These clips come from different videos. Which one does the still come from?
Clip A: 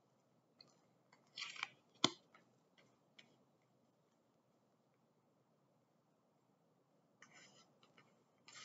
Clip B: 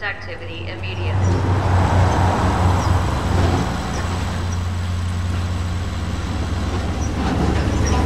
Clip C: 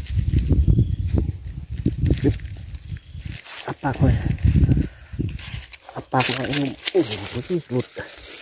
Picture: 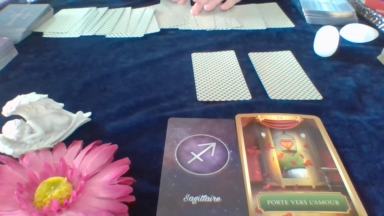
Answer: A